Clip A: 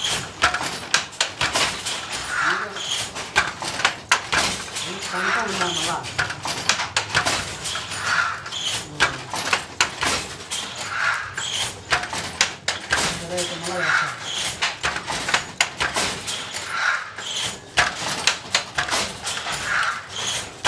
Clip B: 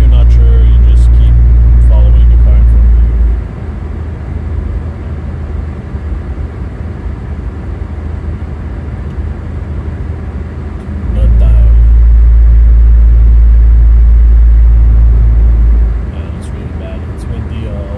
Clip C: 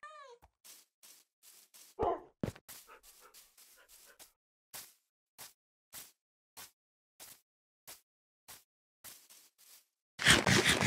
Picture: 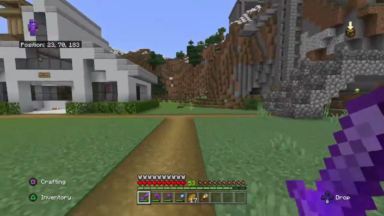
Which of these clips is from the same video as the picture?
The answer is C